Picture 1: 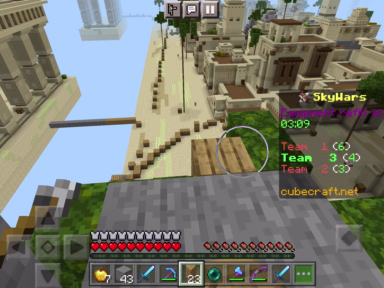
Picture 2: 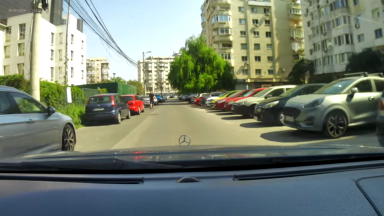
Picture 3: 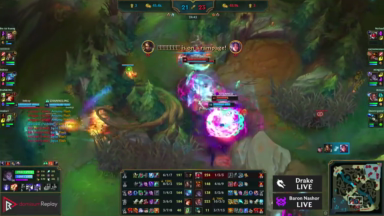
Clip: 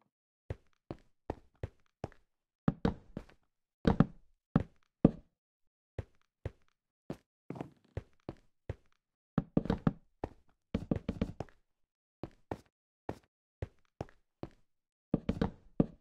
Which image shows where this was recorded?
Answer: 1